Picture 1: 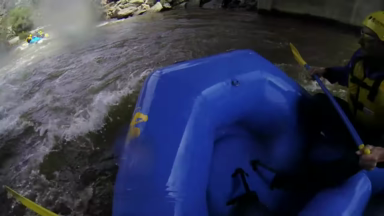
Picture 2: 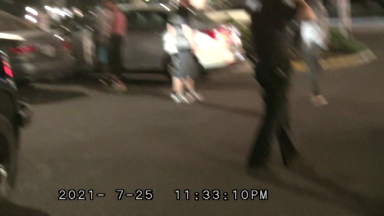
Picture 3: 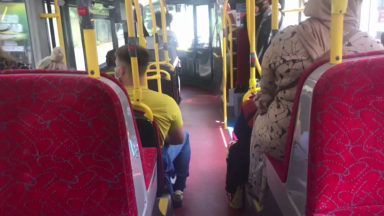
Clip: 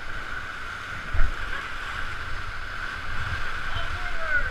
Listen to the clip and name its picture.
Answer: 1